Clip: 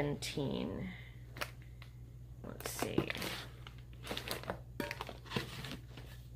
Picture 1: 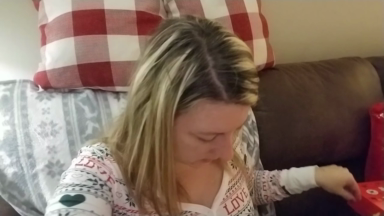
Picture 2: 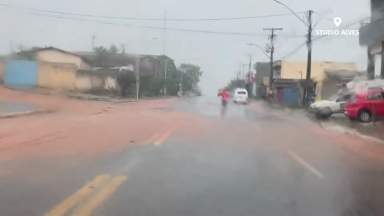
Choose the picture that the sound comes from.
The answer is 1